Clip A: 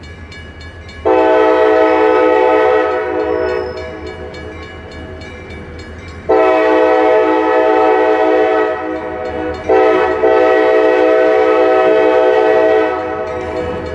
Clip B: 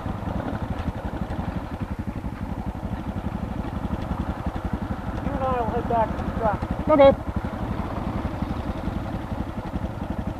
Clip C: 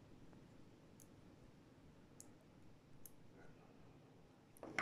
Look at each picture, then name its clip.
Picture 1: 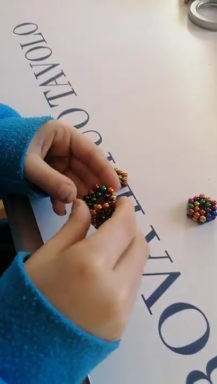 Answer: C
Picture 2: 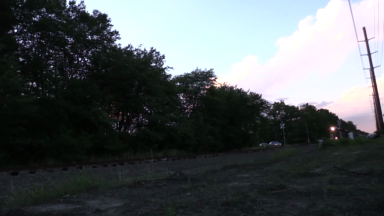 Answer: A